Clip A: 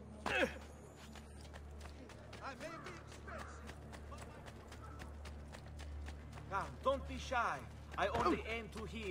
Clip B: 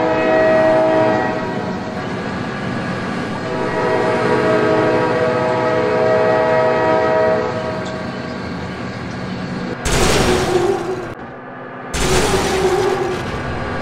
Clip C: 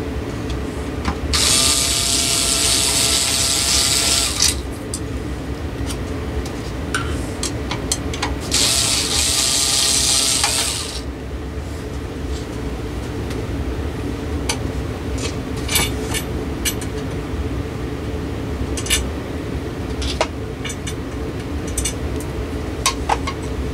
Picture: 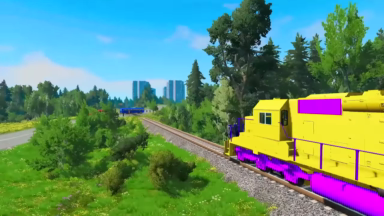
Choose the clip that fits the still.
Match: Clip B